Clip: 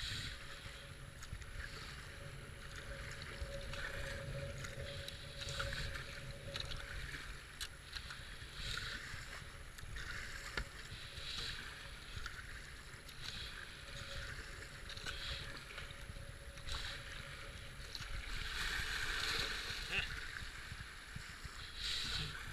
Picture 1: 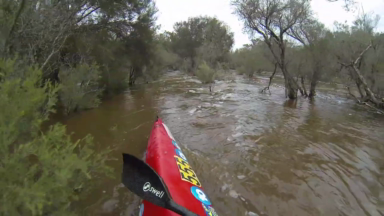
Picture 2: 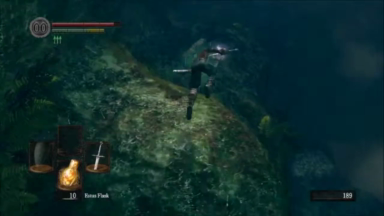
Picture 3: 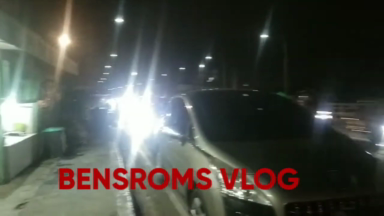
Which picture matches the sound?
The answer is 1